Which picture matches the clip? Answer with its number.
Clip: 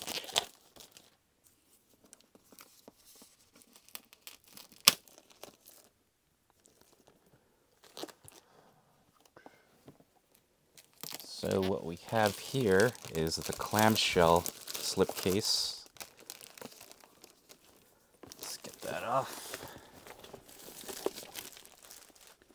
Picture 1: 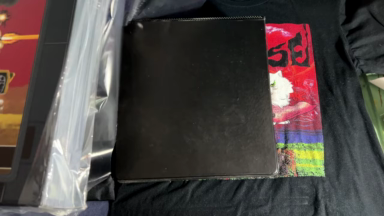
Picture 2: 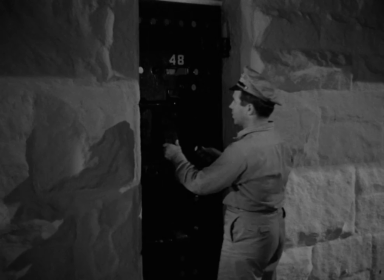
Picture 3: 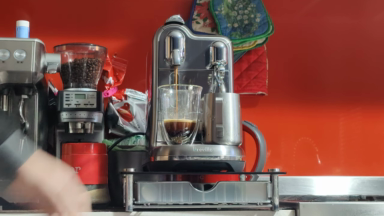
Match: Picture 1